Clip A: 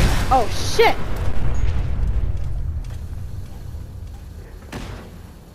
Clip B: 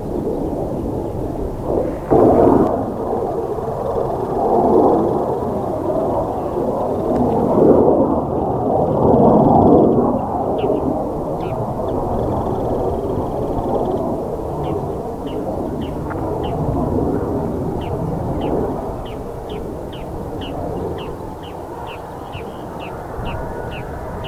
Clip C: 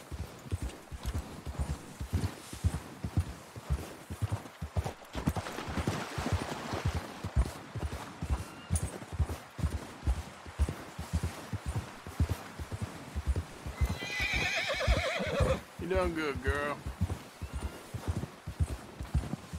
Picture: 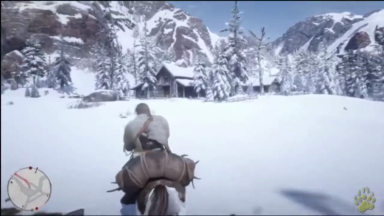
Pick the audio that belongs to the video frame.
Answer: C